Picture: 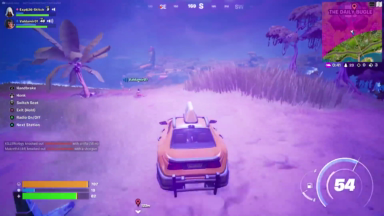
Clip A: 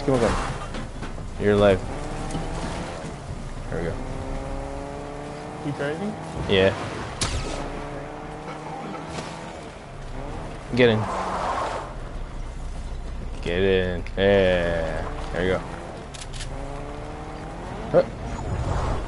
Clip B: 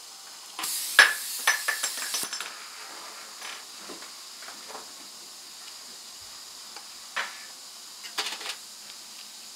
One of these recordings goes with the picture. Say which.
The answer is A